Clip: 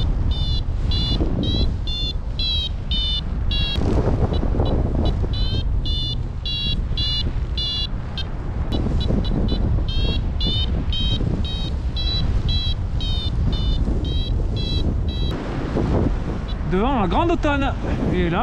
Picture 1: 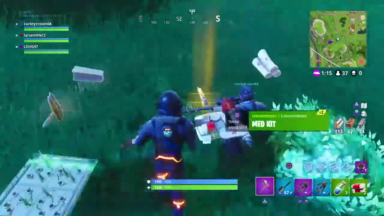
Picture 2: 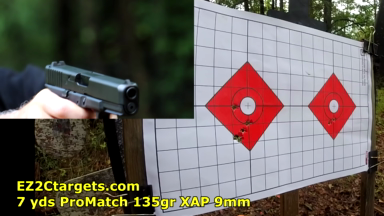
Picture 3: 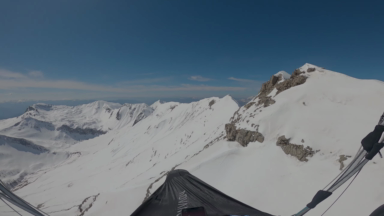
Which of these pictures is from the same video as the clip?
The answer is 3